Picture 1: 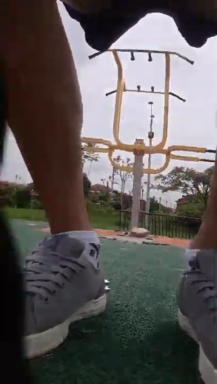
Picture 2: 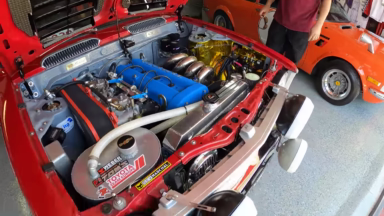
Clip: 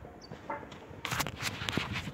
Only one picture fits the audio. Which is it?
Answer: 1